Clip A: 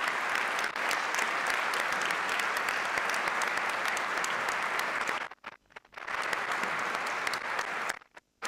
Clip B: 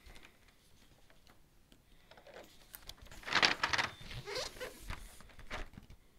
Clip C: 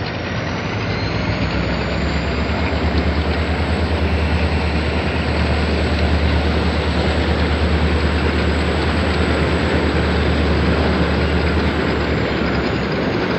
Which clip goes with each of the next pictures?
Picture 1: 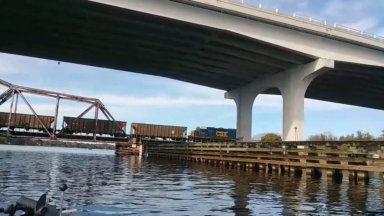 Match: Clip C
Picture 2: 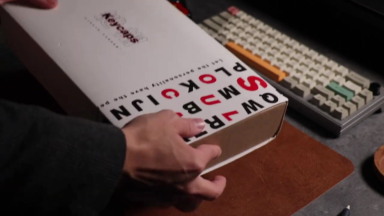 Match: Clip B